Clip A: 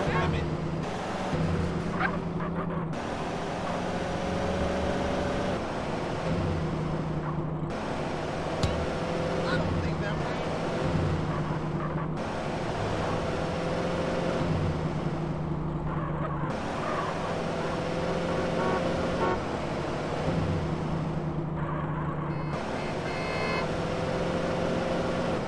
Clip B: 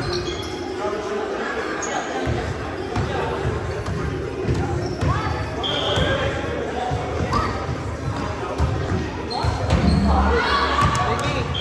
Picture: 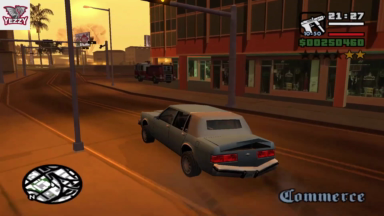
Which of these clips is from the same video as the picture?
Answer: A